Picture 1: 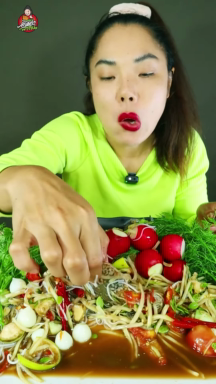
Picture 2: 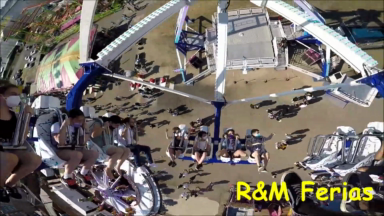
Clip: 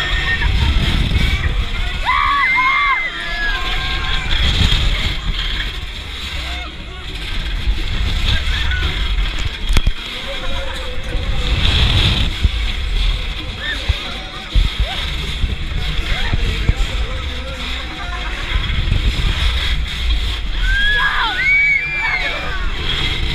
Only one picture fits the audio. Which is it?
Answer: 2